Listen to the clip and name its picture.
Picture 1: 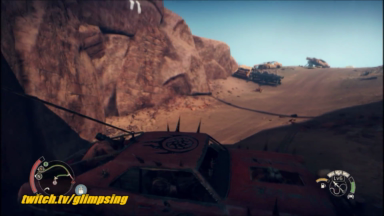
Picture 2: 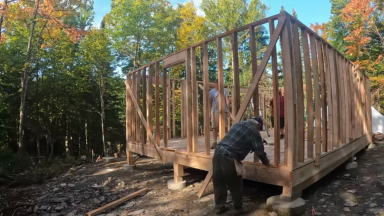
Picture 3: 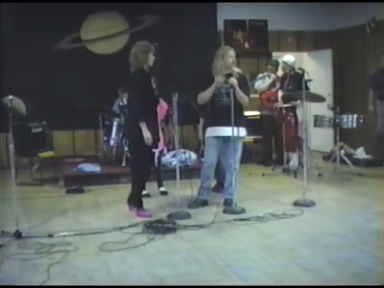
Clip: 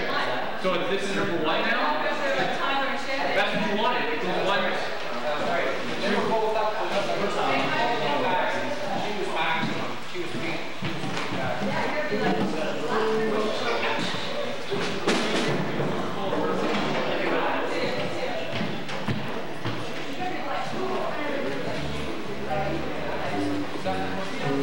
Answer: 3